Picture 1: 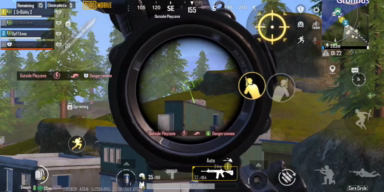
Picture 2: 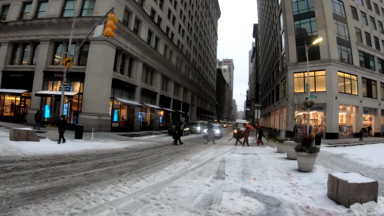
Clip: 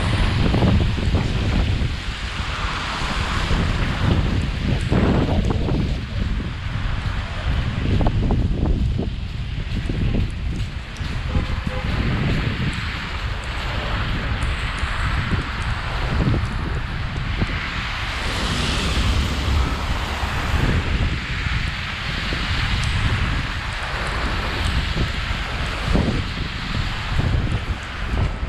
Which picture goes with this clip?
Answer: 2